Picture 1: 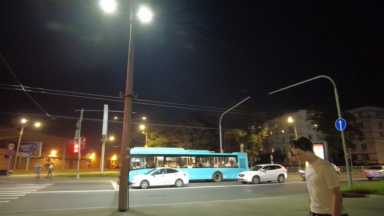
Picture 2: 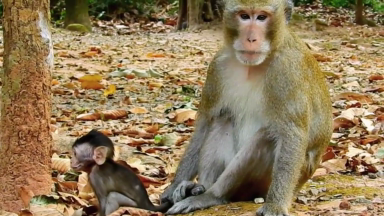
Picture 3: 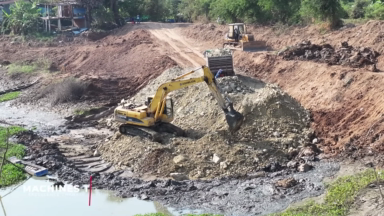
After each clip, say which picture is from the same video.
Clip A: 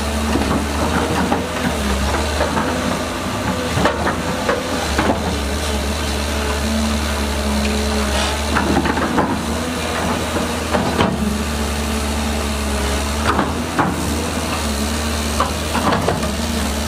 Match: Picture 3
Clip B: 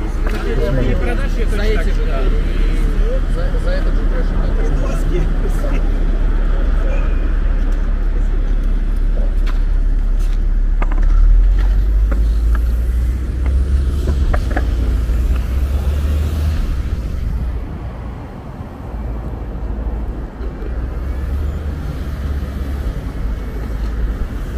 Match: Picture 1